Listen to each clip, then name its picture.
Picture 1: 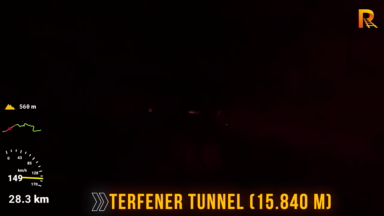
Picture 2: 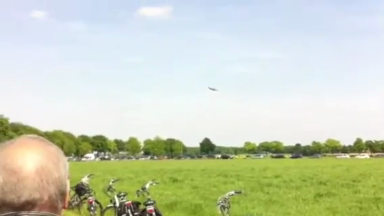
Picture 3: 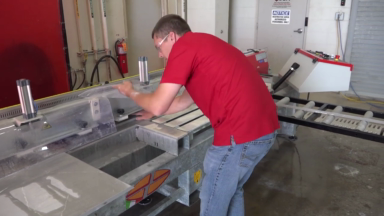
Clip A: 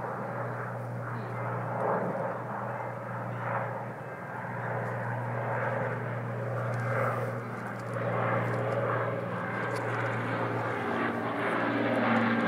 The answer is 2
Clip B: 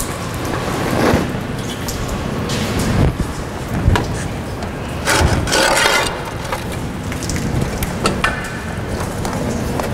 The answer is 3